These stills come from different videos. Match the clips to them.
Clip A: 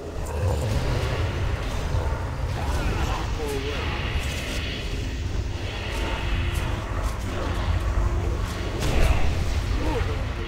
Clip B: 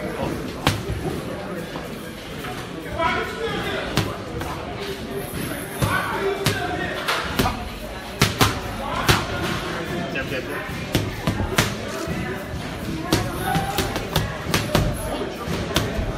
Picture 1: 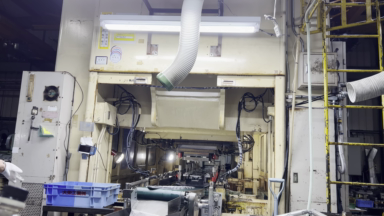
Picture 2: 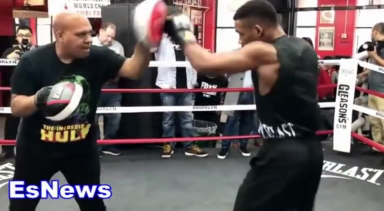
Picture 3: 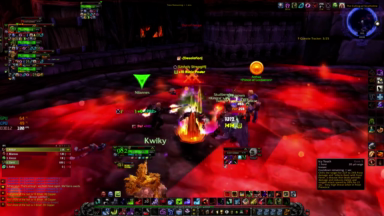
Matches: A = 3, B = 2